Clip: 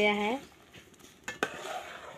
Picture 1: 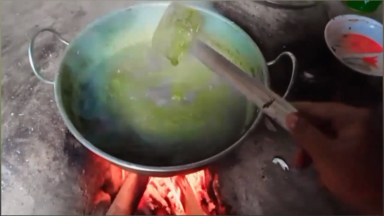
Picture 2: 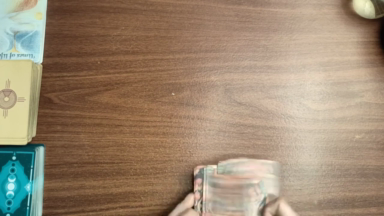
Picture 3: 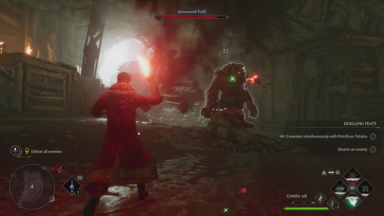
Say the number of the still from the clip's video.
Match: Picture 1